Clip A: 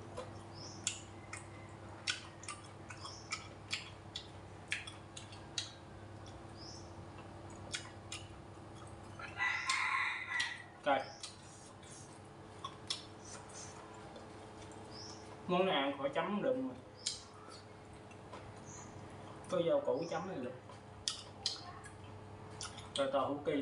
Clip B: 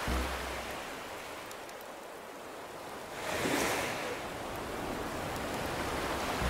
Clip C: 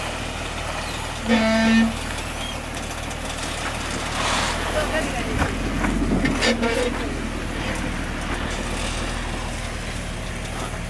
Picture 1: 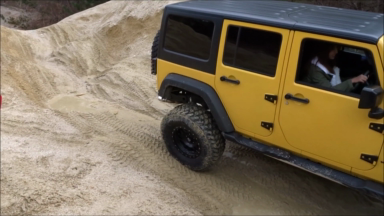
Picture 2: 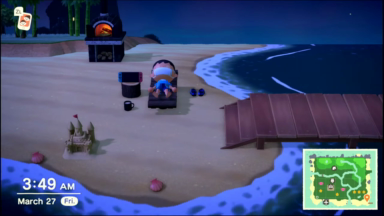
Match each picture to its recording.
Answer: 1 C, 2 B